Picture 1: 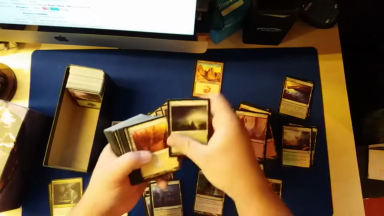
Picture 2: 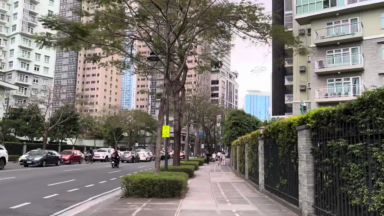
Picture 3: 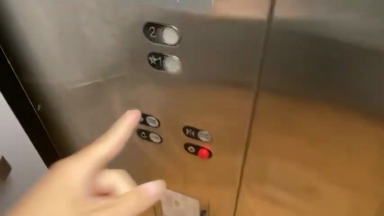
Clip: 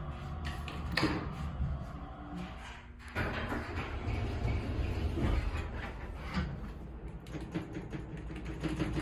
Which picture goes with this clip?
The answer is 3